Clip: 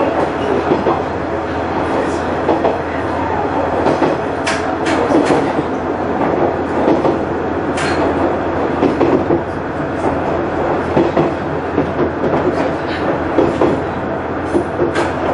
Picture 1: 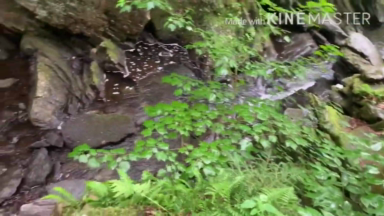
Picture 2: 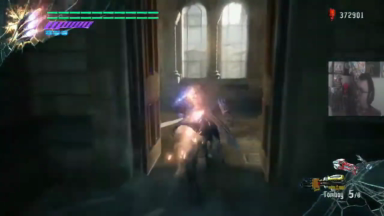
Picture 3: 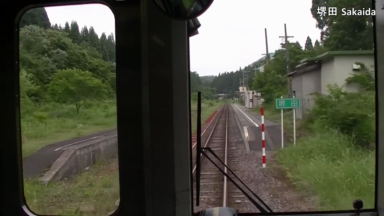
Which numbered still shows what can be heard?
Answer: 3